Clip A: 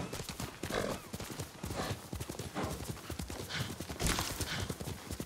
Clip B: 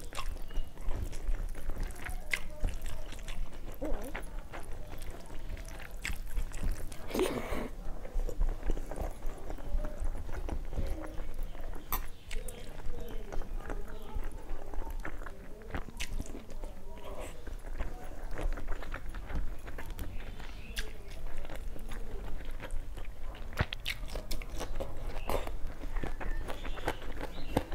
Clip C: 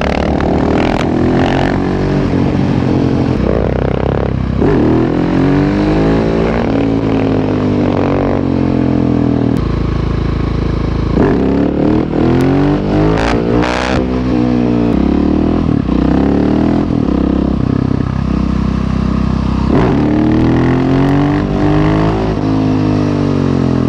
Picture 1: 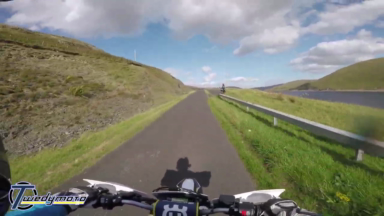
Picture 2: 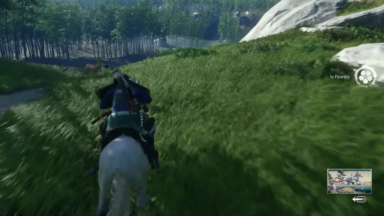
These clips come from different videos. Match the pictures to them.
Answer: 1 C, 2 A